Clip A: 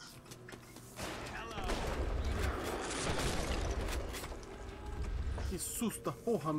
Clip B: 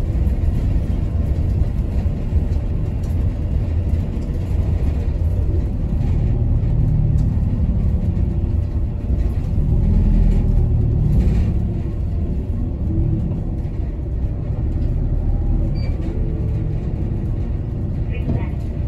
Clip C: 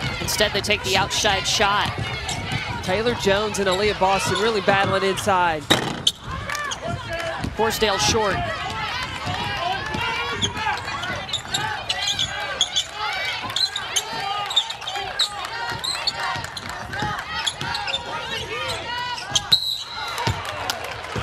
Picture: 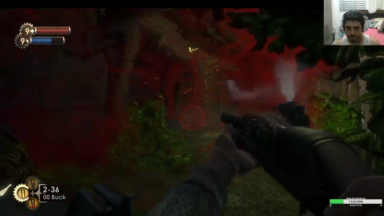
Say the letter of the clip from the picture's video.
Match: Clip A